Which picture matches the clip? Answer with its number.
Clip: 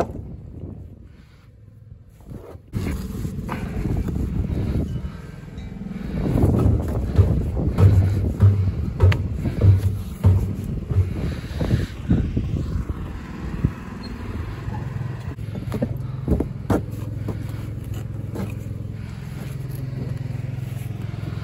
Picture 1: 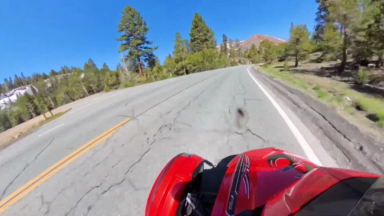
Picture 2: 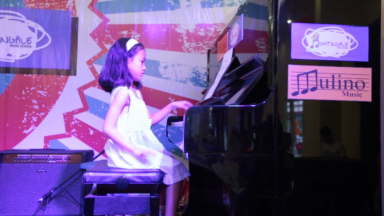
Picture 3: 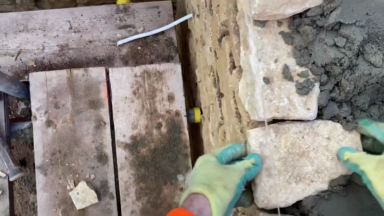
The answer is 3